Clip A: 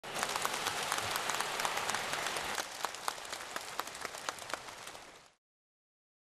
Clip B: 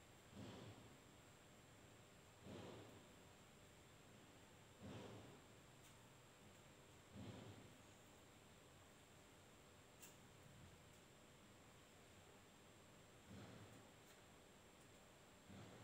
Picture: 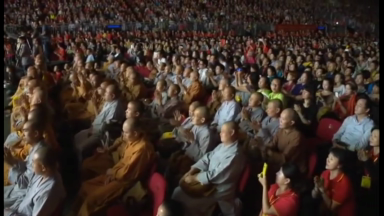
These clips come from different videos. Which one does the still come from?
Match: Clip A